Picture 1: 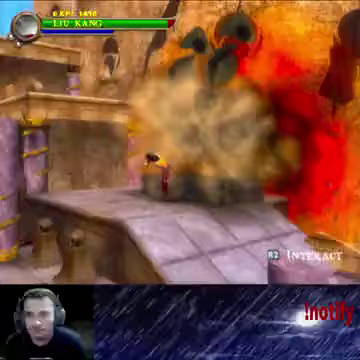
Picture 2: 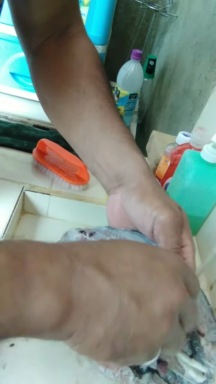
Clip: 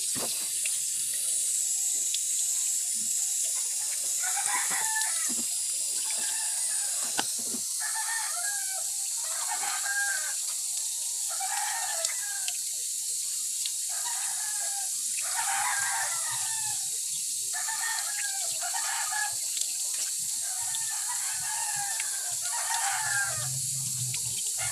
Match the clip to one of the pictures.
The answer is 2